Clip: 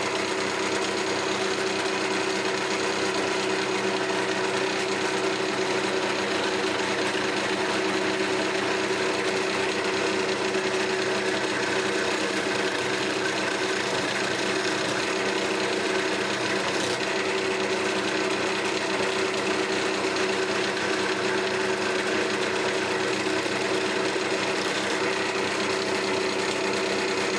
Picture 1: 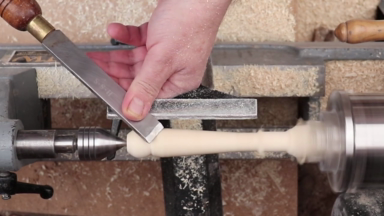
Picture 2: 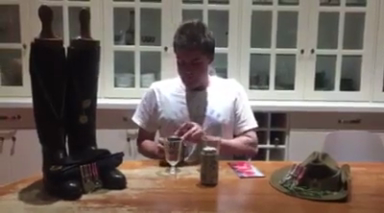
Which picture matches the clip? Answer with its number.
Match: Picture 1